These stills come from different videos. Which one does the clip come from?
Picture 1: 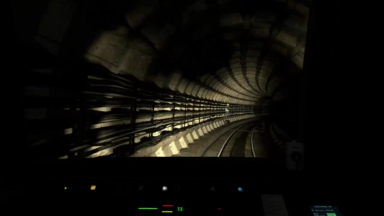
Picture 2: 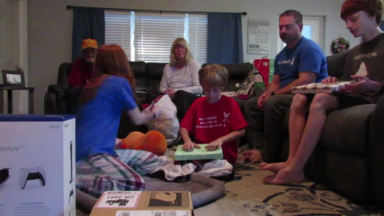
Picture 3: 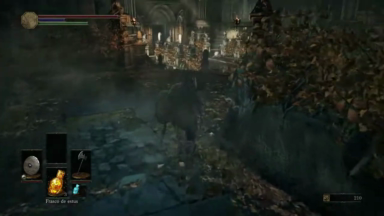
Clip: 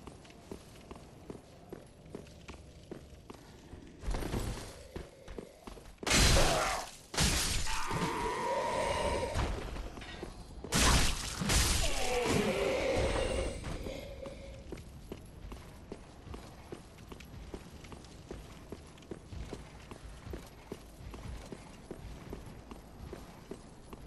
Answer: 3